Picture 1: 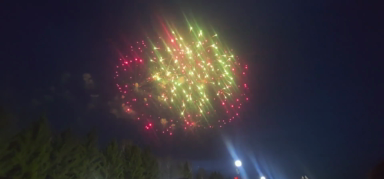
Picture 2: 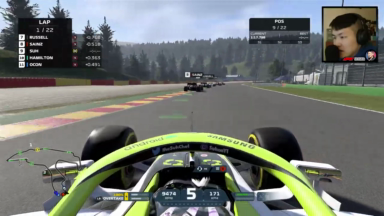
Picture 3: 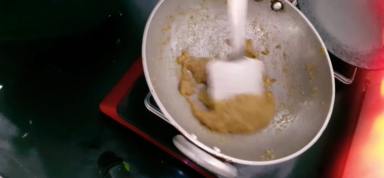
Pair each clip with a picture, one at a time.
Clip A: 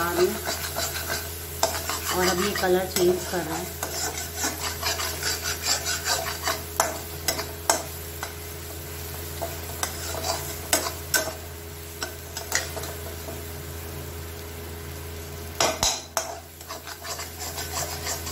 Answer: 3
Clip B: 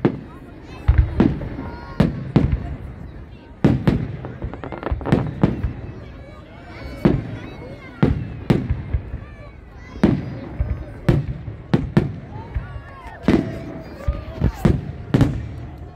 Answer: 1